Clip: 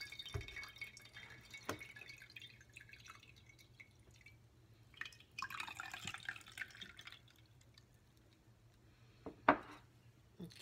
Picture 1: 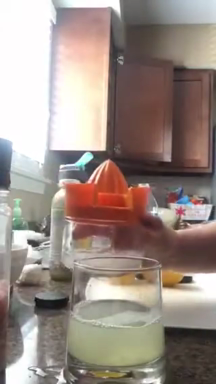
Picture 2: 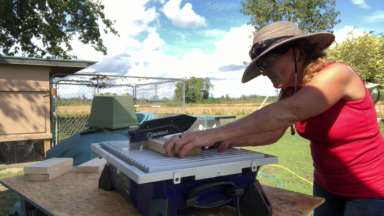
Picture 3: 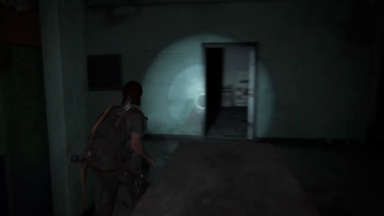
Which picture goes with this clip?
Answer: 1